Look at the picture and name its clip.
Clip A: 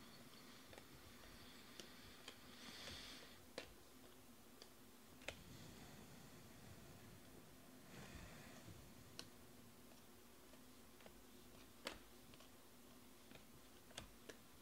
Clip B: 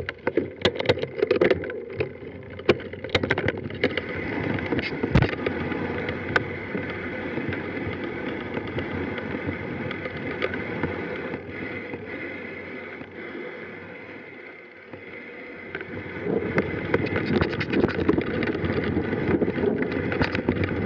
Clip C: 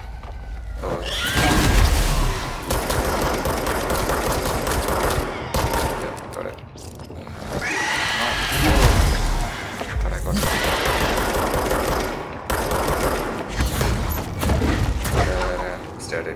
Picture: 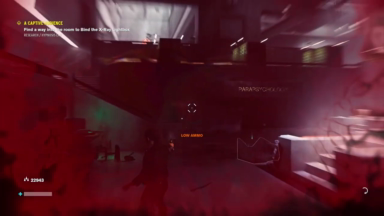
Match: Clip C